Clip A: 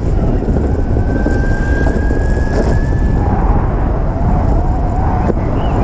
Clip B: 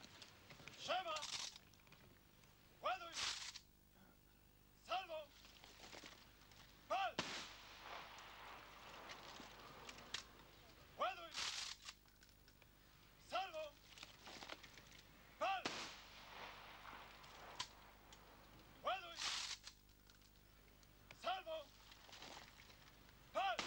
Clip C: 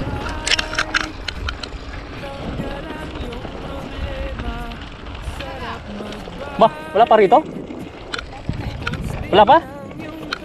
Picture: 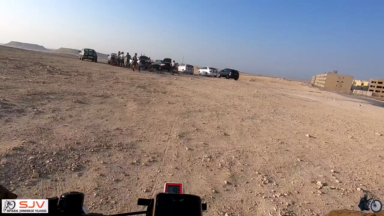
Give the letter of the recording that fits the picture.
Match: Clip C